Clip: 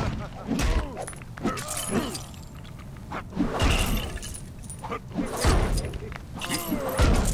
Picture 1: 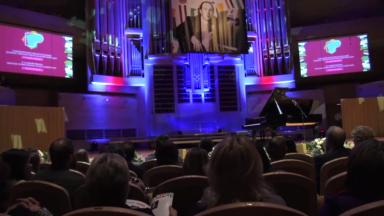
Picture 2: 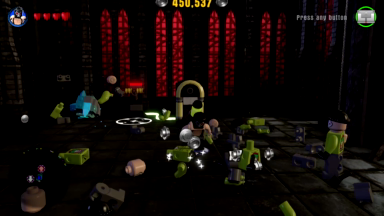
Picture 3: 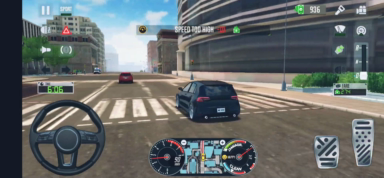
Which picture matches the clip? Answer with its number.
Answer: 2